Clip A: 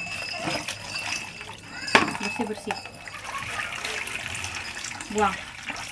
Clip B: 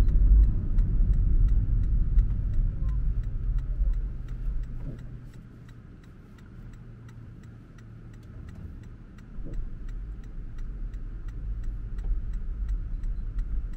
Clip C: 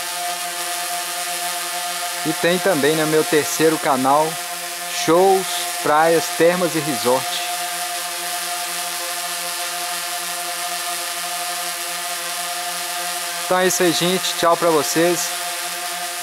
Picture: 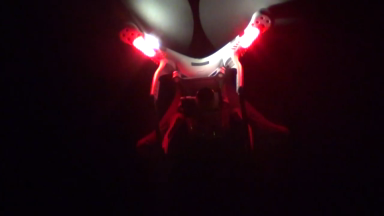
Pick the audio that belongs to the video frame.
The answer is C